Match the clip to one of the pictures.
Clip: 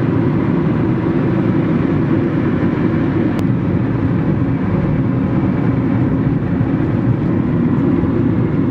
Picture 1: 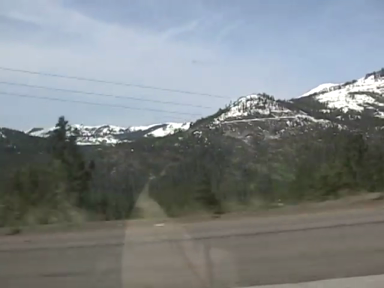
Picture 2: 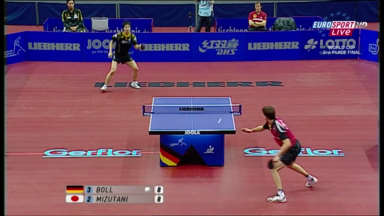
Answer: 1